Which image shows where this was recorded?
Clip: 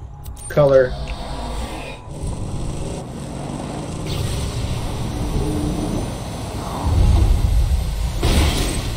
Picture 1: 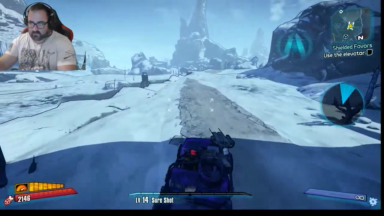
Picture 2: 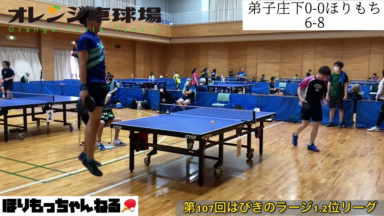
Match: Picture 1